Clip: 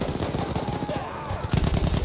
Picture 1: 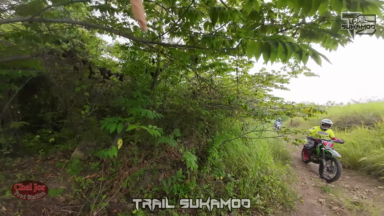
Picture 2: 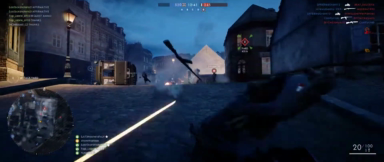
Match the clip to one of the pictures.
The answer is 2